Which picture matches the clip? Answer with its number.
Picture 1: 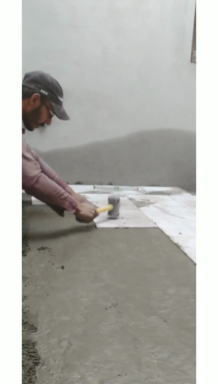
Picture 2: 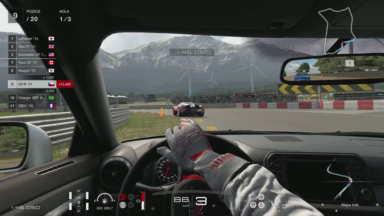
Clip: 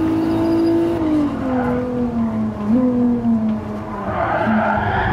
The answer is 2